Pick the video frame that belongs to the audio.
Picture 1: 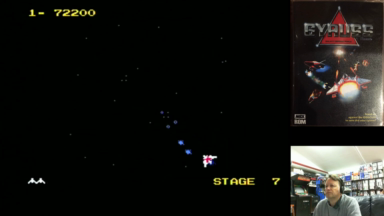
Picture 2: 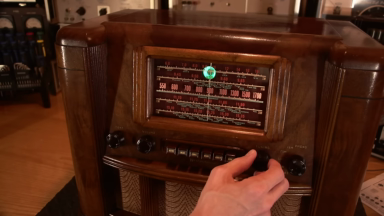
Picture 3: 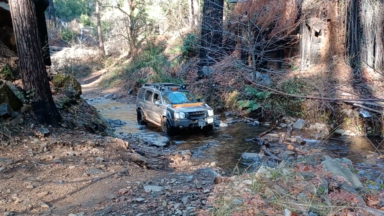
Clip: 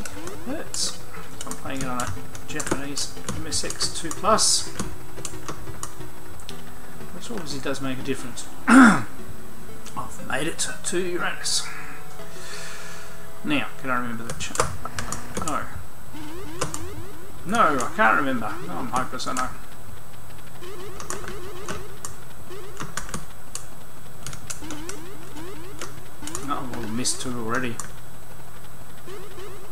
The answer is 1